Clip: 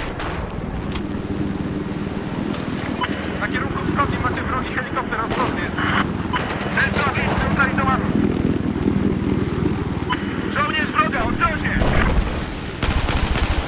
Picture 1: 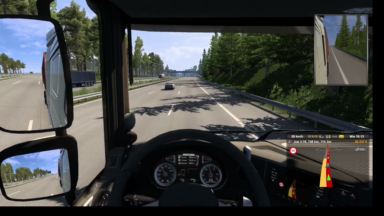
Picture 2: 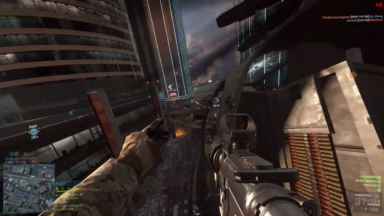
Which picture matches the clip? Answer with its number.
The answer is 2